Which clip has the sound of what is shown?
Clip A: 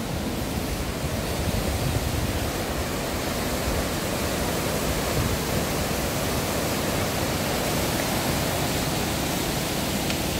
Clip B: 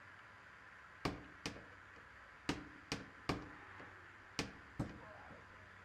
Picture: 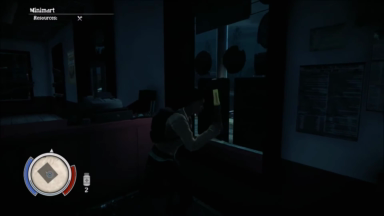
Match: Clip B